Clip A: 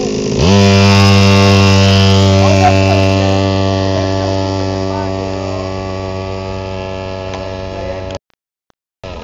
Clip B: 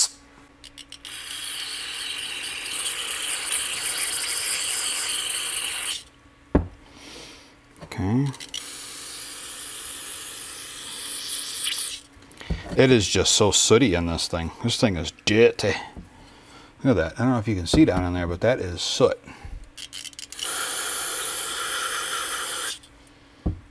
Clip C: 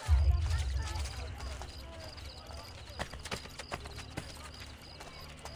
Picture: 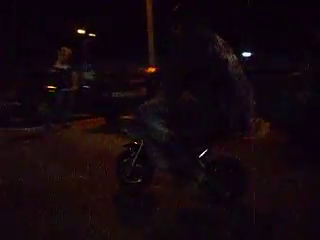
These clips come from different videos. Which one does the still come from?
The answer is A